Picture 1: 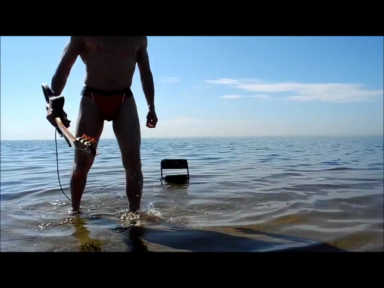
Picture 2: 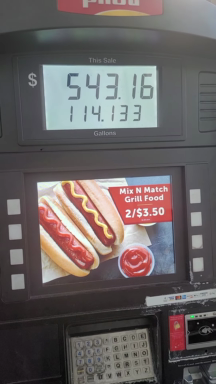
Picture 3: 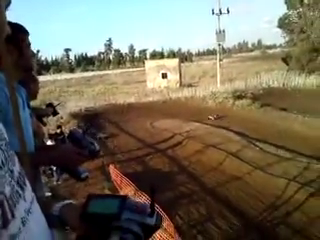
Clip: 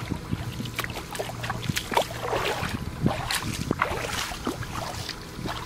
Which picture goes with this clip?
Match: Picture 1